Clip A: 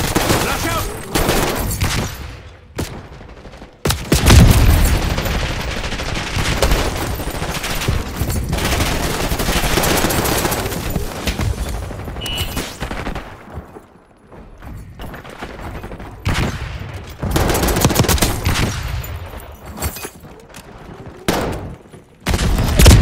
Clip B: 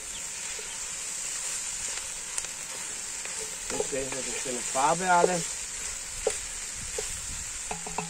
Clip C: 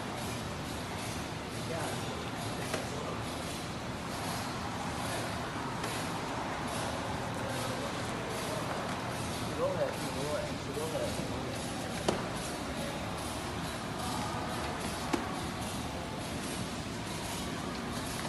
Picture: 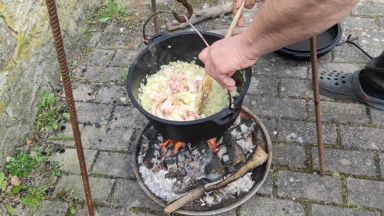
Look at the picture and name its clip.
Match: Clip B